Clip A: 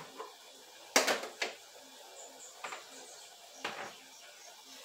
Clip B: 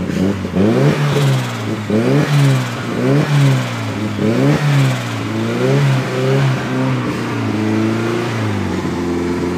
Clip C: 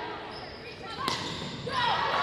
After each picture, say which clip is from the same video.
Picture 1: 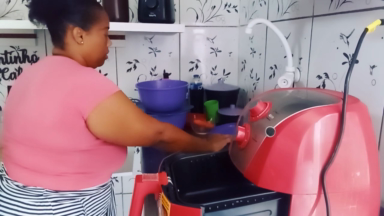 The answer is A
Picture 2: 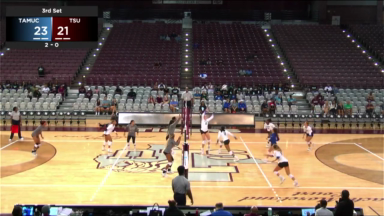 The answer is C